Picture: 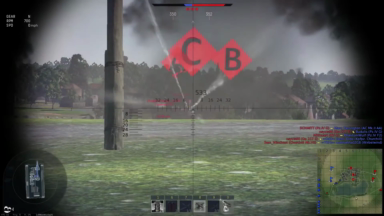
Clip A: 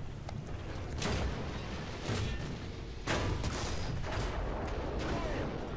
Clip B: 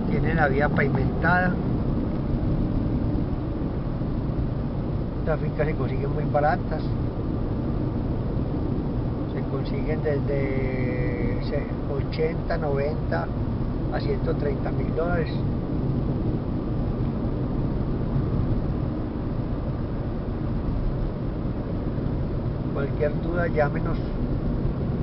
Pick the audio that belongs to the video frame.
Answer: A